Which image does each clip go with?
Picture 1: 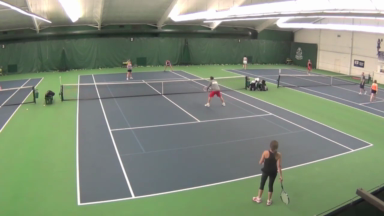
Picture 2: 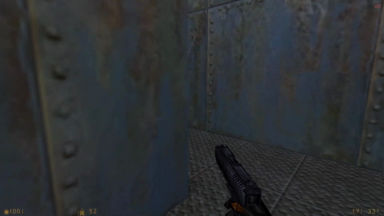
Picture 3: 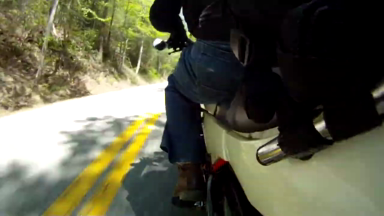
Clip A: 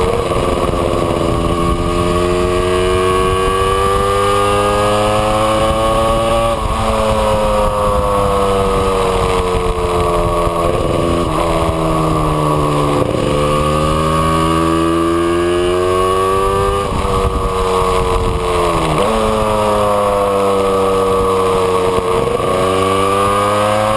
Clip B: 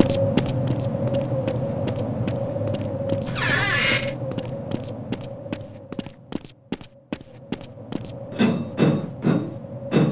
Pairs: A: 3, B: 2